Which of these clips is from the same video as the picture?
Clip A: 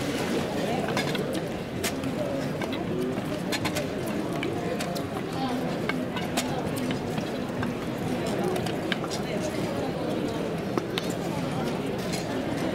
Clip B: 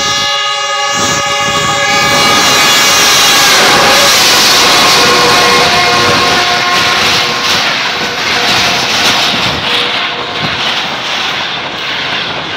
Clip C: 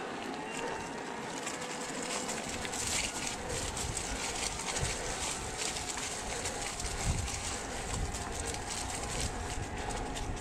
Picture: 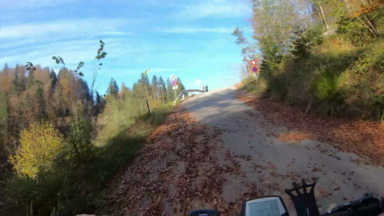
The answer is C